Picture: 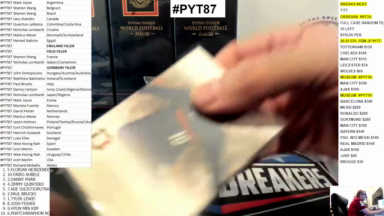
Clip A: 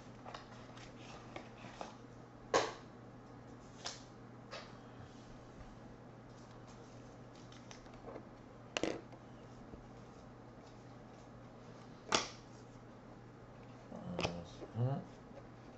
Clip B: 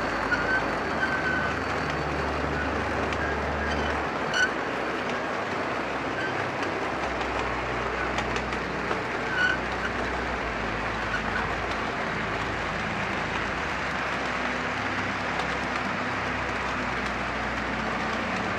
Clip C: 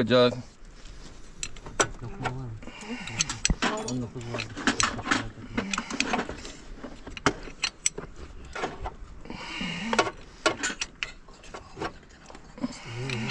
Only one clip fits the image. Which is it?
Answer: A